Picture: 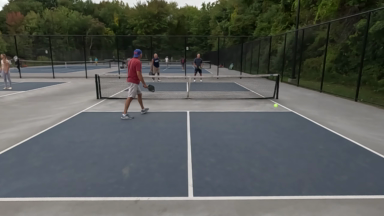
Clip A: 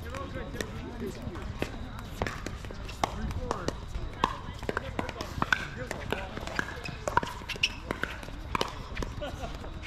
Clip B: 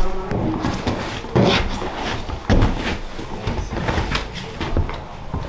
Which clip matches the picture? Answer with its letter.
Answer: A